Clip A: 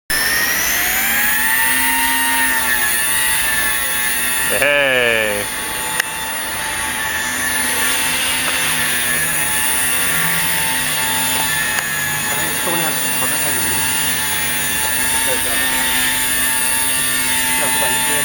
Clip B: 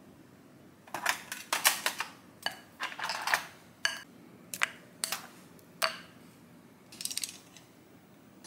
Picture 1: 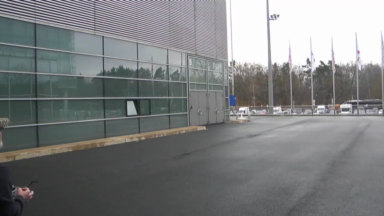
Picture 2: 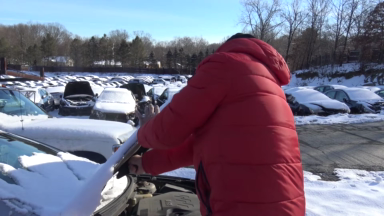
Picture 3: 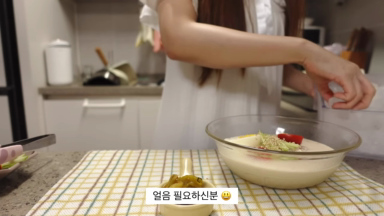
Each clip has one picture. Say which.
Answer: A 1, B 3